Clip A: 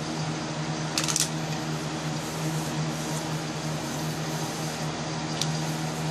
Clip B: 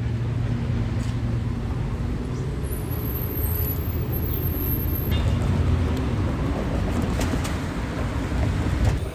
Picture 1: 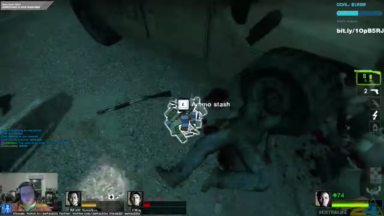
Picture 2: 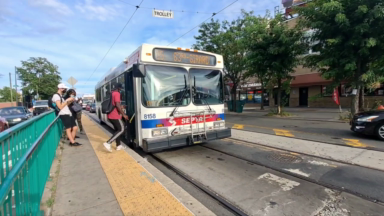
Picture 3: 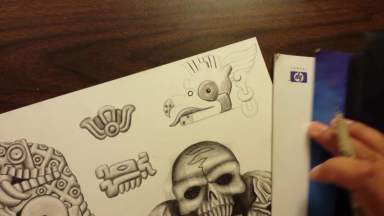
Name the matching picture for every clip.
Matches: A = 3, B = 2